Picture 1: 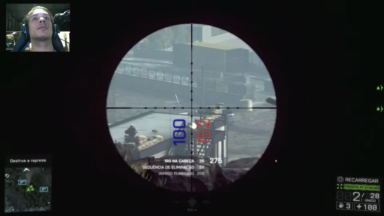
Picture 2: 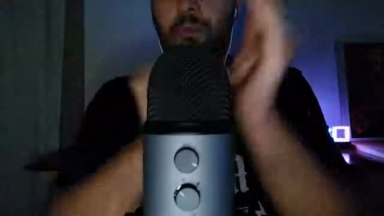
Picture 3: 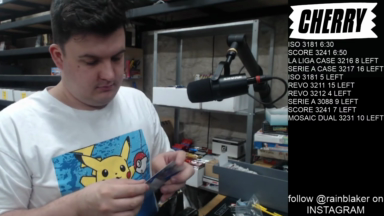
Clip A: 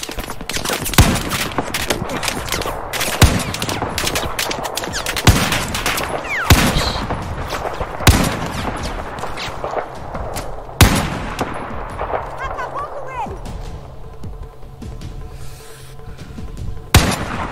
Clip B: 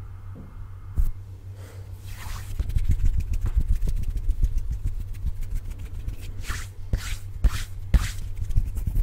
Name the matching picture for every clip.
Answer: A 1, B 2